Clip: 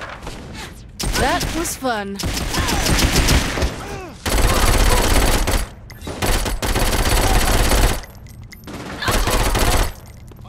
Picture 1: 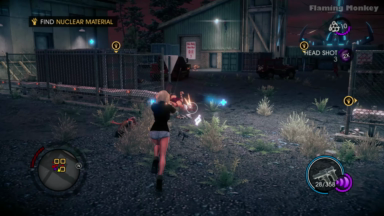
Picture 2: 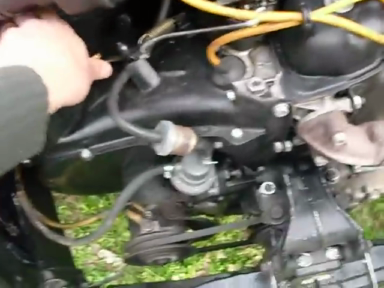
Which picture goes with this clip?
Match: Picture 1